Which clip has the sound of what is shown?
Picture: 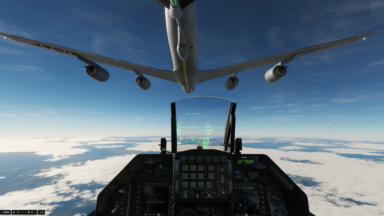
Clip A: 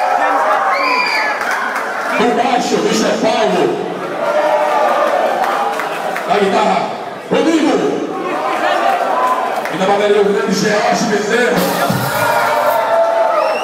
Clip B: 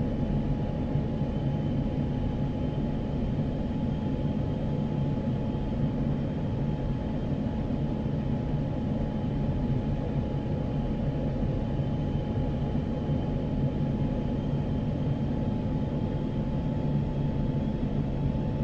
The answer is B